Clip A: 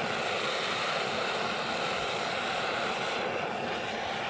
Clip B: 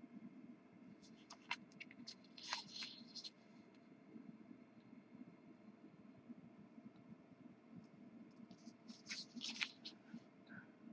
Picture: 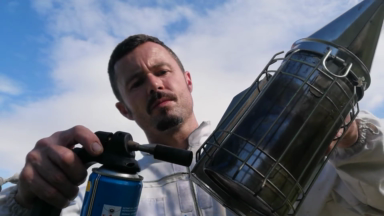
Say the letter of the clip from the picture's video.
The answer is A